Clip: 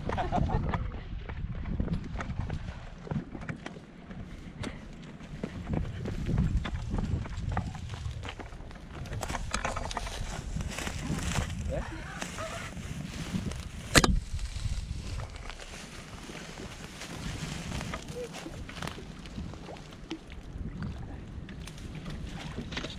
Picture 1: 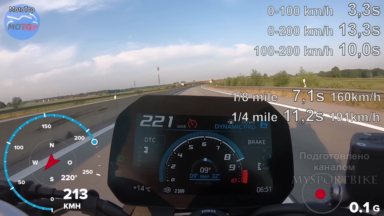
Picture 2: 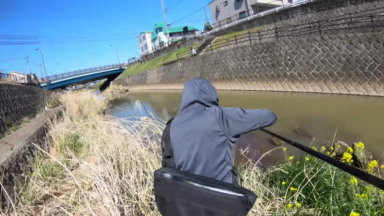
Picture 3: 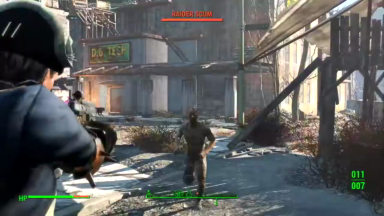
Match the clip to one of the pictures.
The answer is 2